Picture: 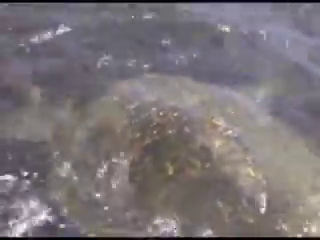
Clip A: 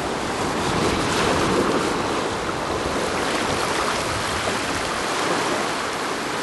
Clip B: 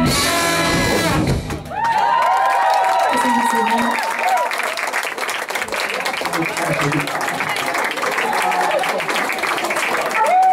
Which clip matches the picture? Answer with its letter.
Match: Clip A